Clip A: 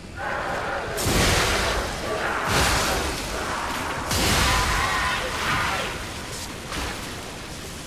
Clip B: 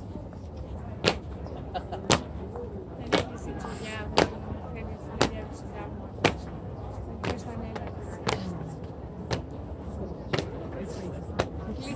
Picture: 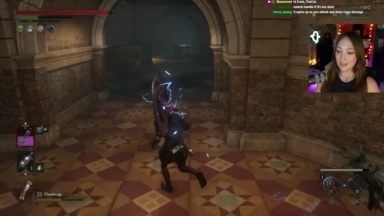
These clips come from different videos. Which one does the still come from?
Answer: A